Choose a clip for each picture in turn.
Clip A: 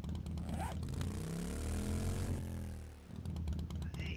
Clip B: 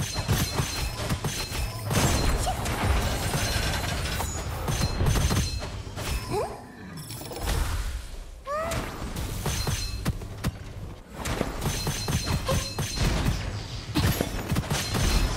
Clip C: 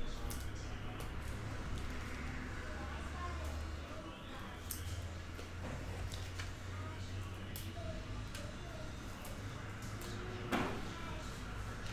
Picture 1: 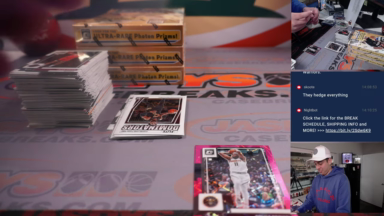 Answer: C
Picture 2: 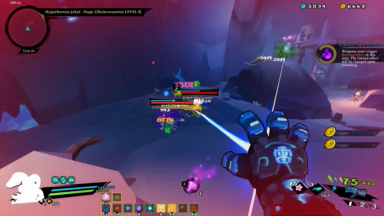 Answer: B